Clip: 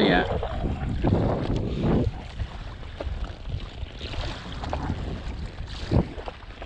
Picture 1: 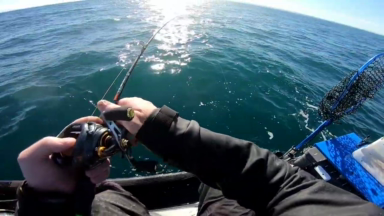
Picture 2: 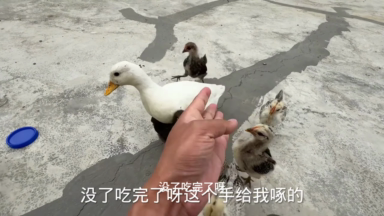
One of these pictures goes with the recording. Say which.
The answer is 1